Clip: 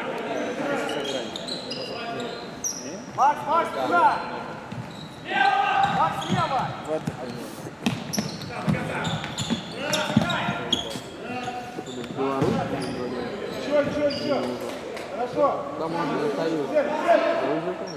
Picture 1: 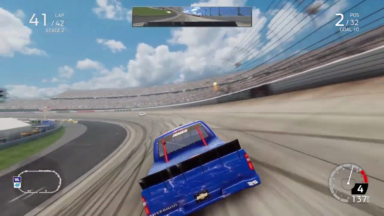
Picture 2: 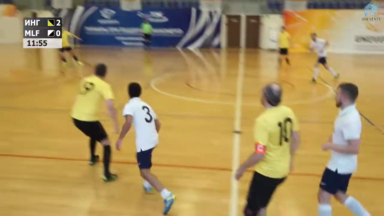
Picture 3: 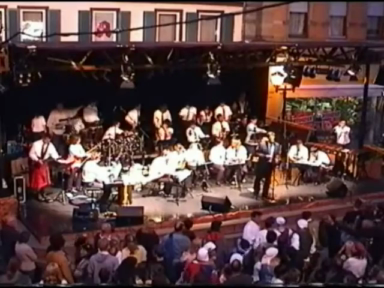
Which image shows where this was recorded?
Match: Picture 2